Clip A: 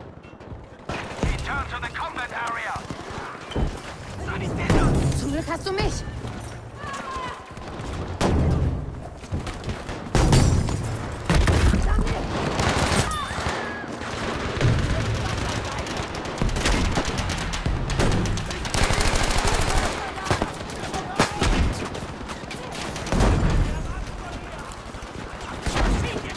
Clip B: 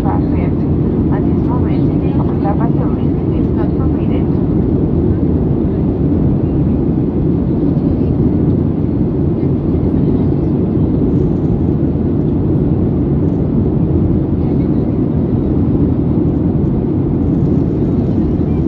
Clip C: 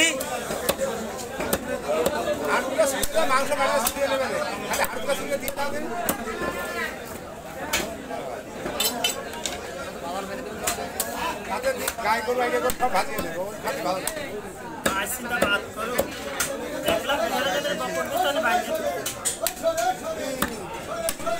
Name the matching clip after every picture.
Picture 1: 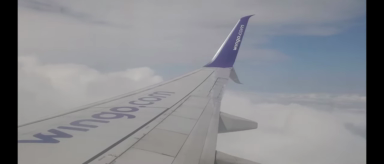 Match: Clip B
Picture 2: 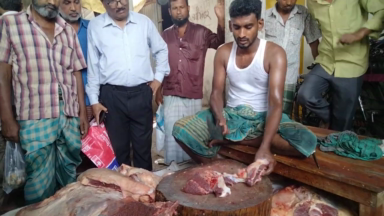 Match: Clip C